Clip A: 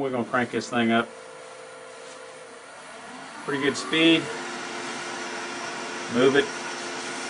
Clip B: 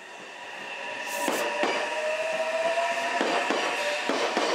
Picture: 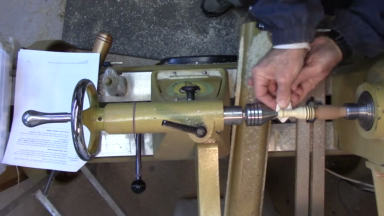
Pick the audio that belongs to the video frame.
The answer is A